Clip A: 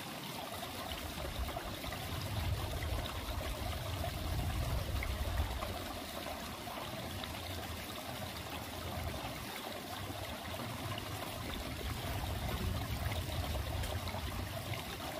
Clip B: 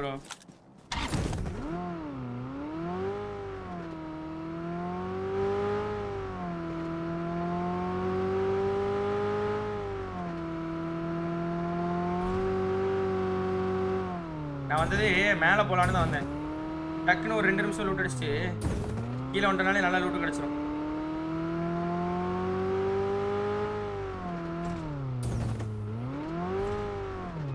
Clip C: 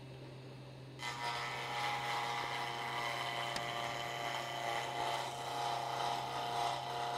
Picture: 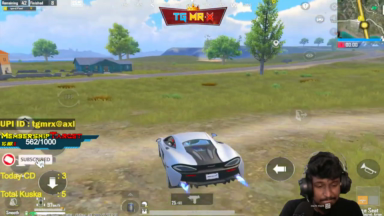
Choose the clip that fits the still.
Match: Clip B